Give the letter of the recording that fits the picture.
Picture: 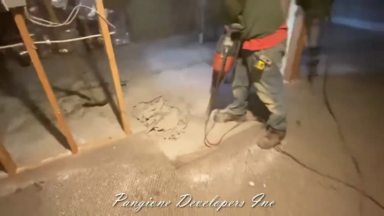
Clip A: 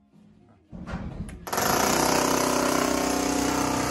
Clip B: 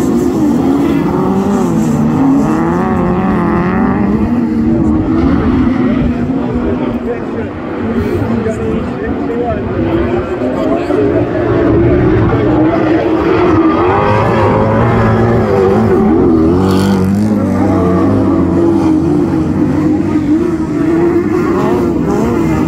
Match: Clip A